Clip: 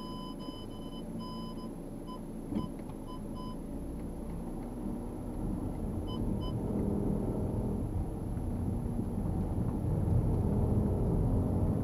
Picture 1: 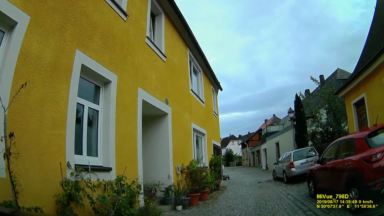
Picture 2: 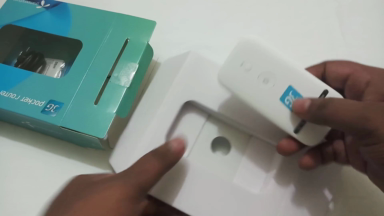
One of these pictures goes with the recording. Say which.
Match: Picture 1